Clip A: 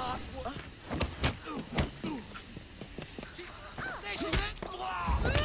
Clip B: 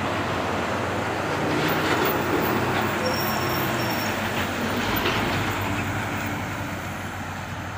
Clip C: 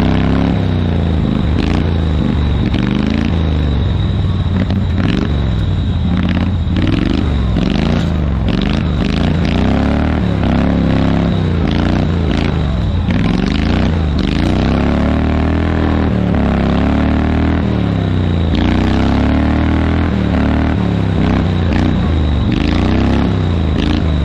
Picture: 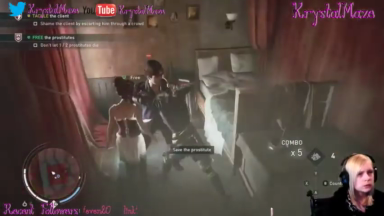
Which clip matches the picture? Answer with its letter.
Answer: A